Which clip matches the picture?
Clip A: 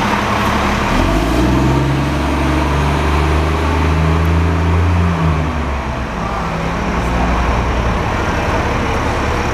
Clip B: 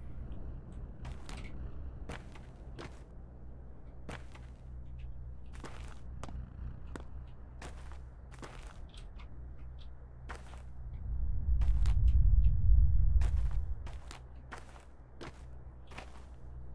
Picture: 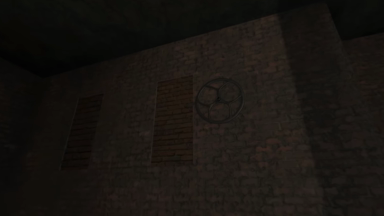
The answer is B